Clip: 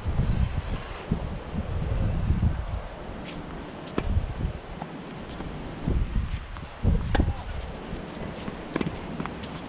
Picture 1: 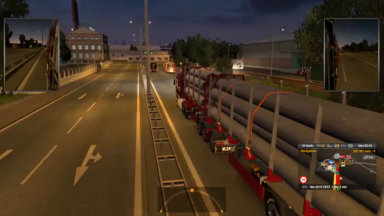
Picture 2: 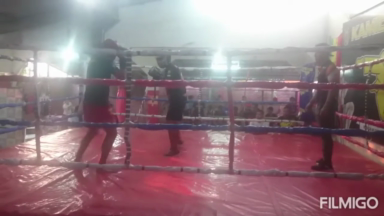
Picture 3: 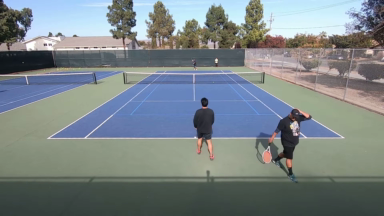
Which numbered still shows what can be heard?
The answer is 3